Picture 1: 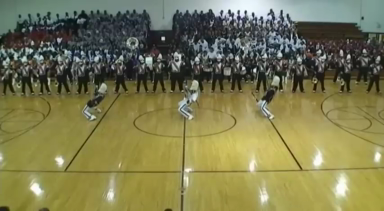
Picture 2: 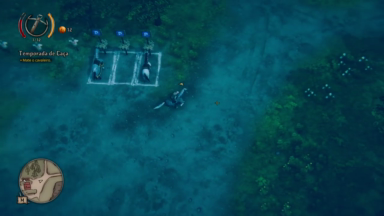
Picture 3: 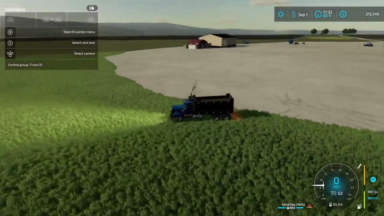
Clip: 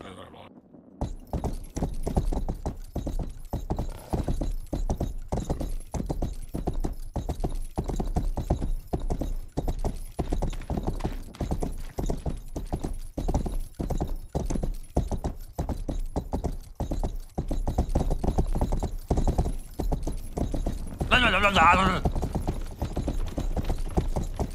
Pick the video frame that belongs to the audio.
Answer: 2